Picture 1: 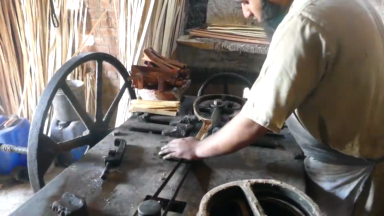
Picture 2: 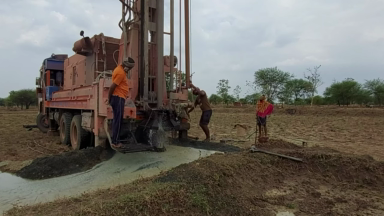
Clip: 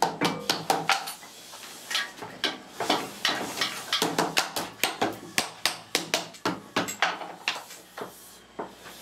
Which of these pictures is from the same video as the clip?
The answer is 1